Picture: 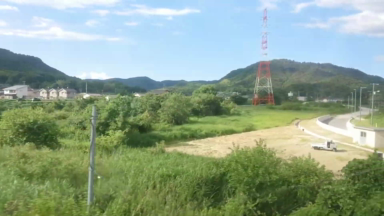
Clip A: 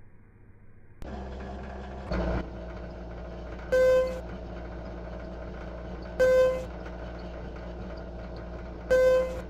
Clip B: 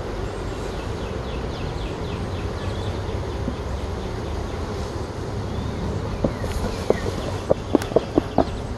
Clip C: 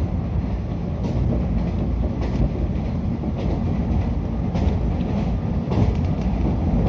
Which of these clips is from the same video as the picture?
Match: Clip C